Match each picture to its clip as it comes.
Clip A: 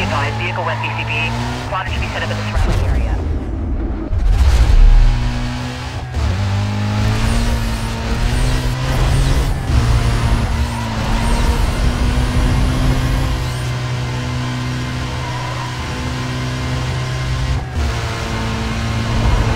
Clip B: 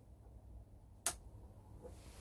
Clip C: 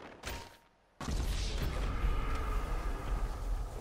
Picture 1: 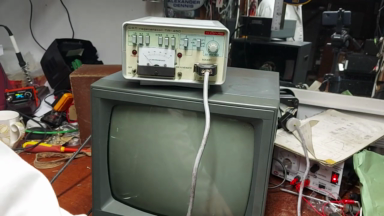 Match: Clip B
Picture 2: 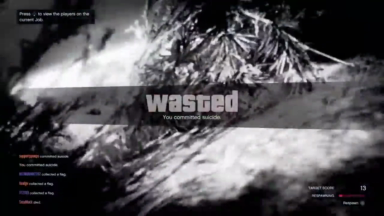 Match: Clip C